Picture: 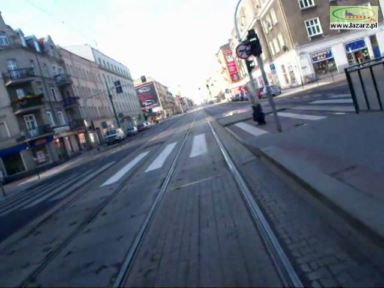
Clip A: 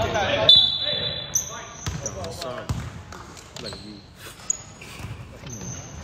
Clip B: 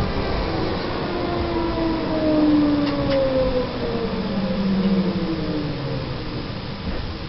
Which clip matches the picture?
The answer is B